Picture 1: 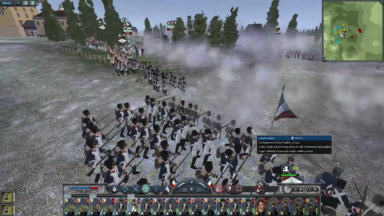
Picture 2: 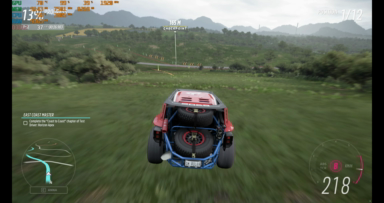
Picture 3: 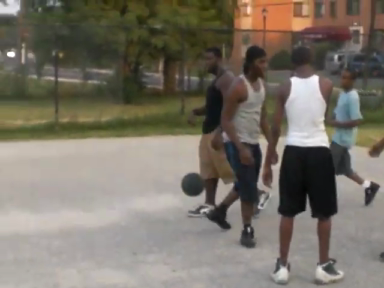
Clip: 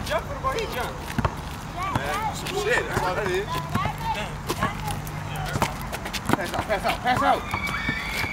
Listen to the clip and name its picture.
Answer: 3